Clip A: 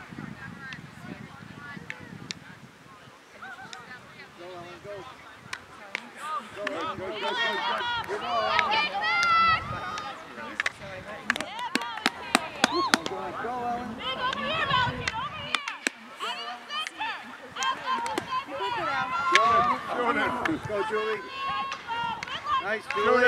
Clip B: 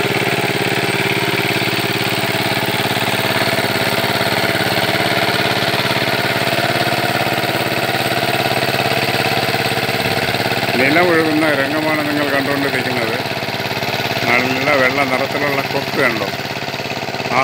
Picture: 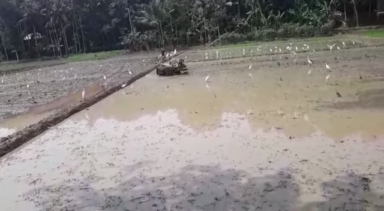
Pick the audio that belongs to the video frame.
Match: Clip B